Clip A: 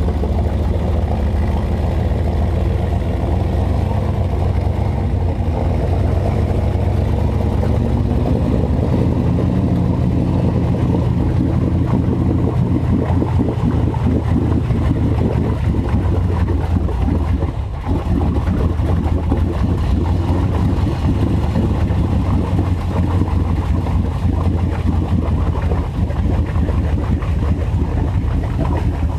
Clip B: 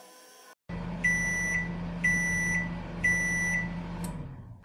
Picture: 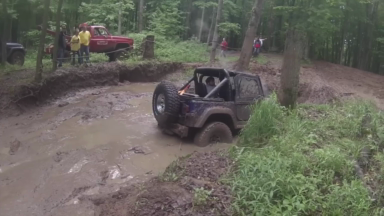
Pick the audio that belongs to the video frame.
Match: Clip A